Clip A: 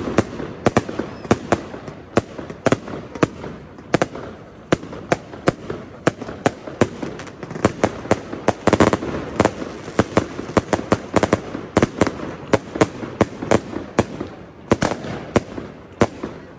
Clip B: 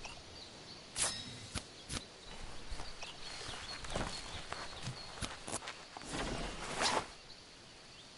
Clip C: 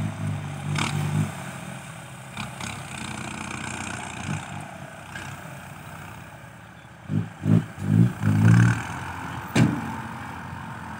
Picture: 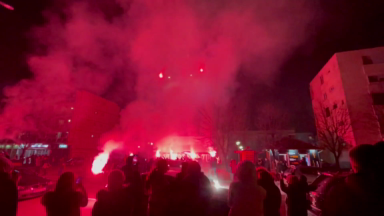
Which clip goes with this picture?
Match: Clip A